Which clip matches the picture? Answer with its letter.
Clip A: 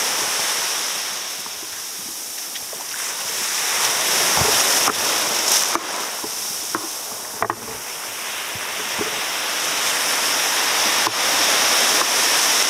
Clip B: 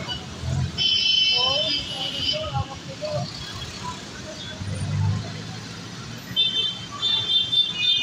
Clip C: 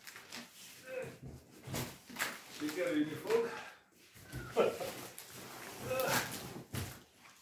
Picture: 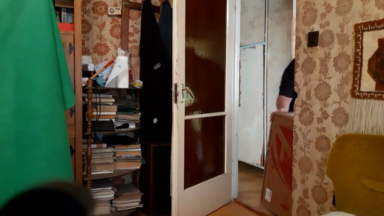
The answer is C